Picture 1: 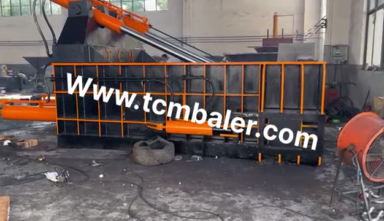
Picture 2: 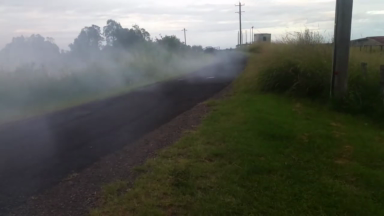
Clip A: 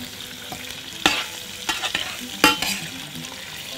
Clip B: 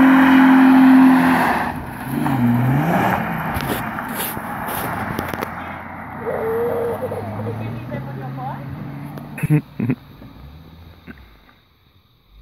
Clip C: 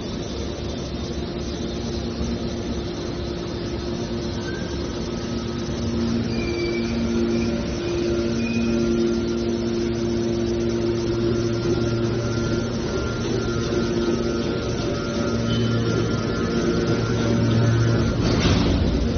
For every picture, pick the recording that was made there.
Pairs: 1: C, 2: B